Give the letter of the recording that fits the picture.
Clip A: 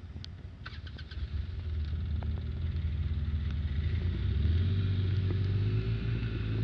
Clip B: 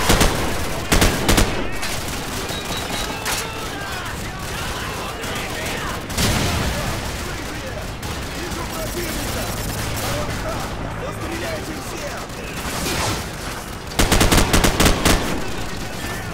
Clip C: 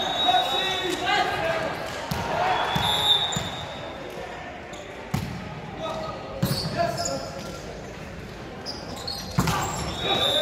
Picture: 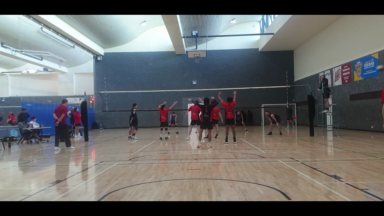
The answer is C